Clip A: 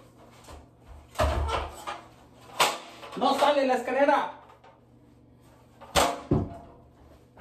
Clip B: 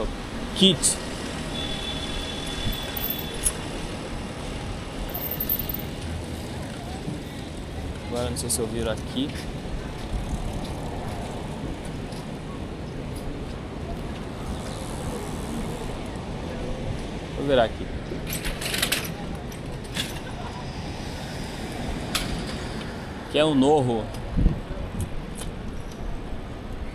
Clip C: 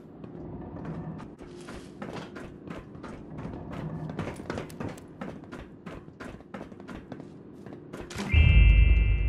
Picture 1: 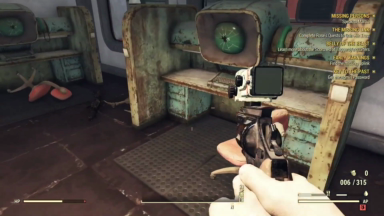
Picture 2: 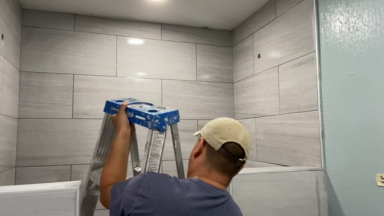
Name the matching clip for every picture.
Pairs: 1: C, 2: A